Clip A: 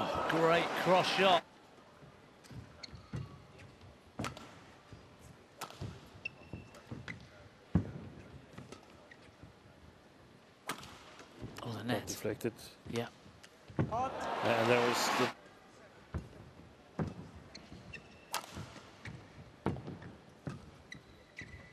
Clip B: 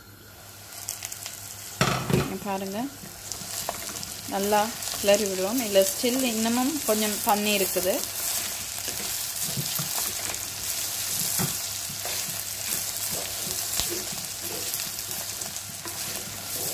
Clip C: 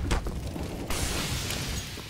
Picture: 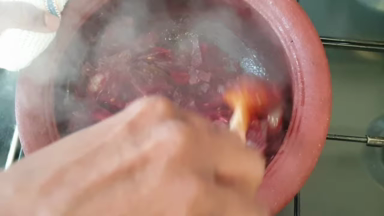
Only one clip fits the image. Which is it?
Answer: B